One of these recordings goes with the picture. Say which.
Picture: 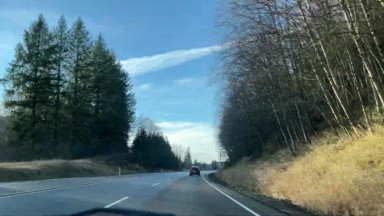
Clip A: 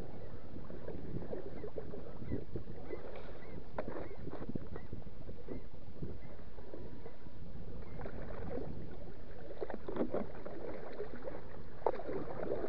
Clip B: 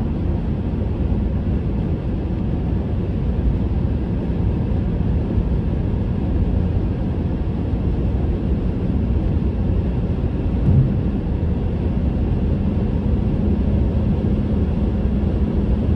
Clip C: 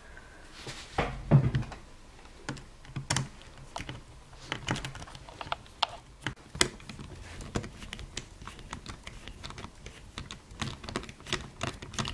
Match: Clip B